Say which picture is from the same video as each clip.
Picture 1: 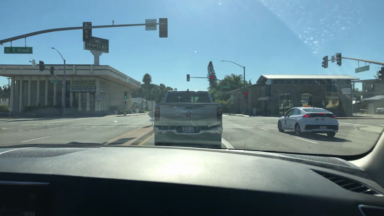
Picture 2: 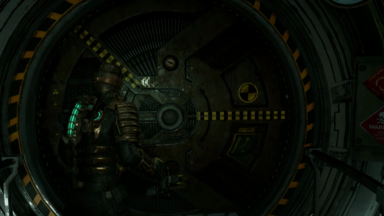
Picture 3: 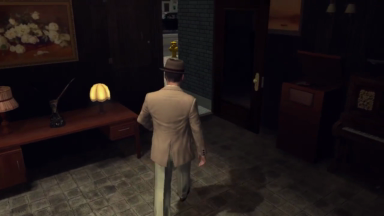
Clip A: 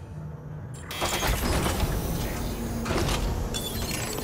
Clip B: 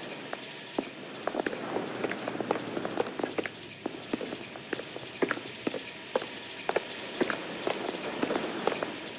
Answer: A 2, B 3